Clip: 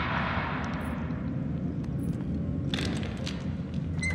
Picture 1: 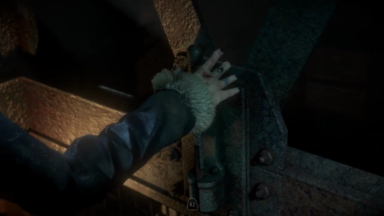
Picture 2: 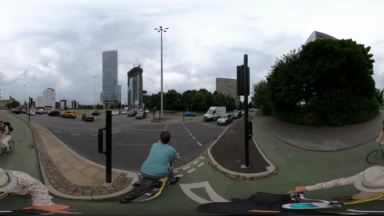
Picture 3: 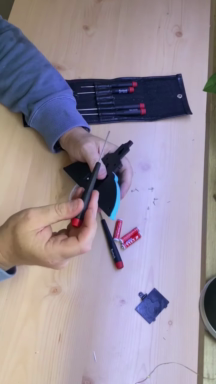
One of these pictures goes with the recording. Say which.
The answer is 1